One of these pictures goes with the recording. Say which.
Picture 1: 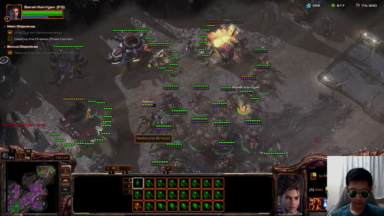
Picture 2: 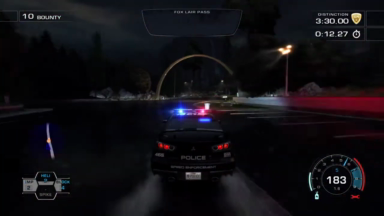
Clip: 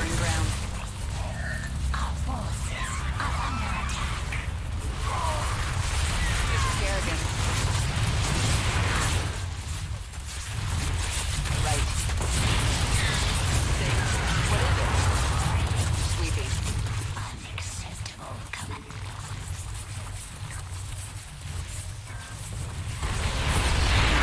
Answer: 1